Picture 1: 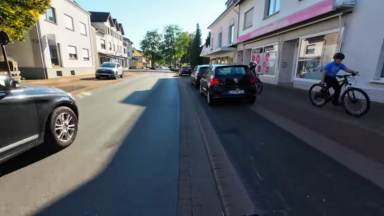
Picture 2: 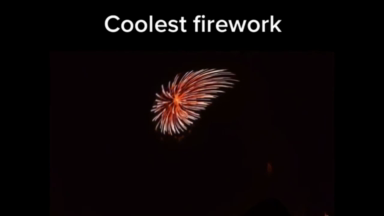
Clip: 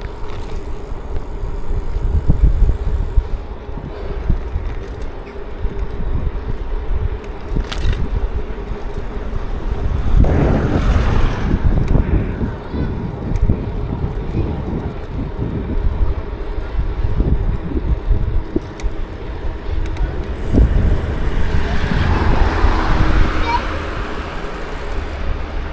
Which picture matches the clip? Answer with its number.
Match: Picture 1